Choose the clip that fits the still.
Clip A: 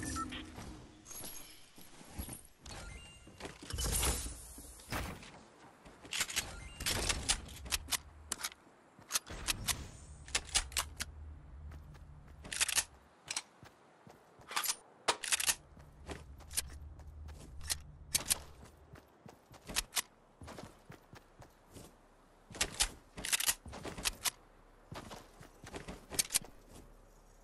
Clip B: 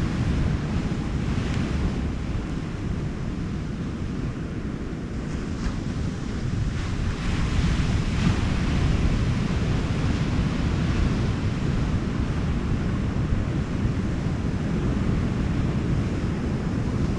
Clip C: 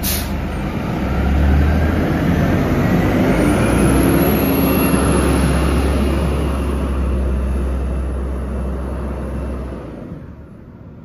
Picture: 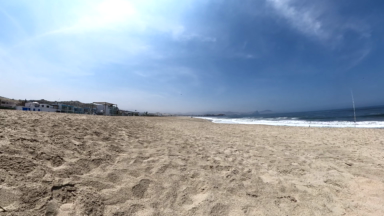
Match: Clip B